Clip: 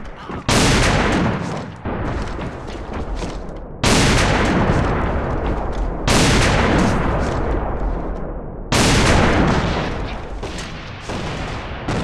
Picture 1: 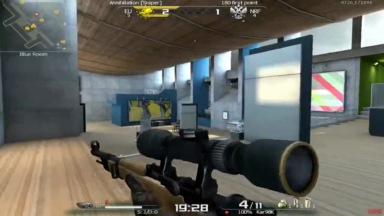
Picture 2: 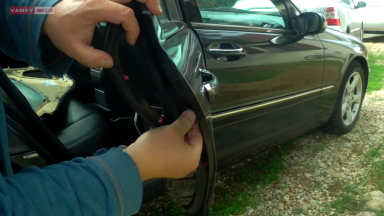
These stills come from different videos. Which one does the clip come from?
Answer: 1